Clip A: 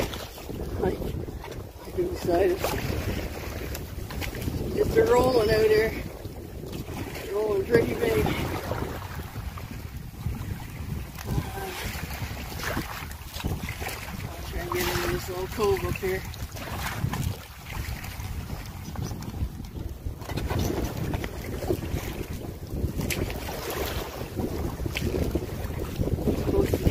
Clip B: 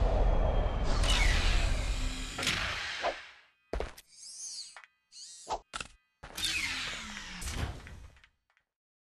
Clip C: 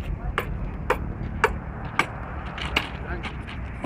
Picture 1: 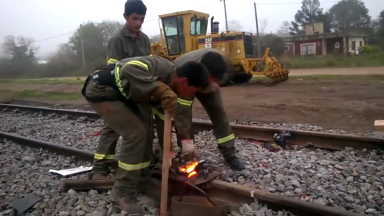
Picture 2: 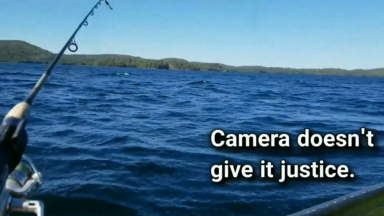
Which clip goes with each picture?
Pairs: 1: C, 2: A